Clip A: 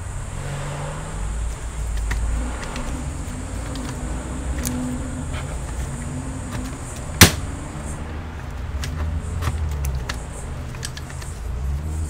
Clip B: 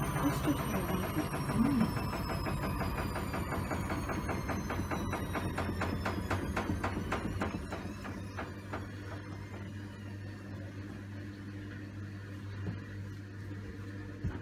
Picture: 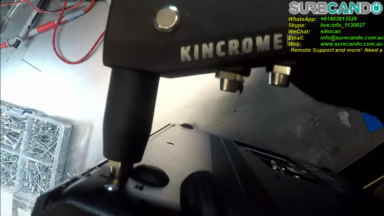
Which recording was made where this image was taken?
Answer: A